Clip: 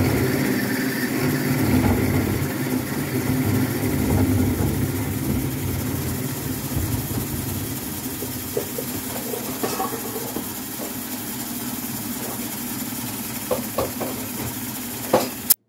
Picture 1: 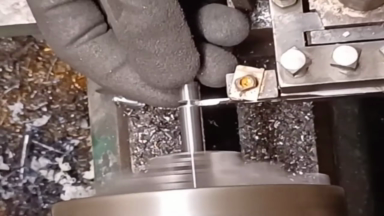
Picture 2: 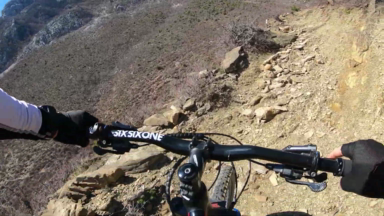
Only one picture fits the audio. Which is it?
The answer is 1